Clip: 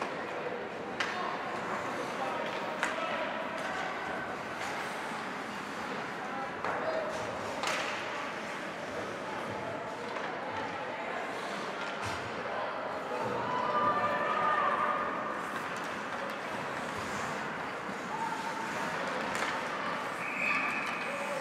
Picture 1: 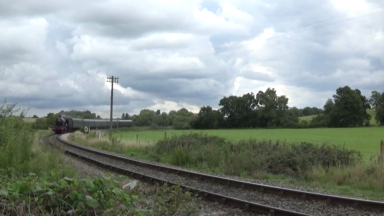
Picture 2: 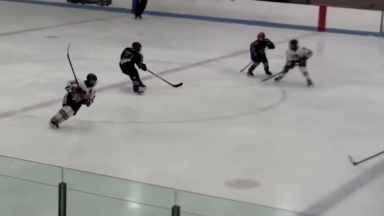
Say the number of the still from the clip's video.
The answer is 2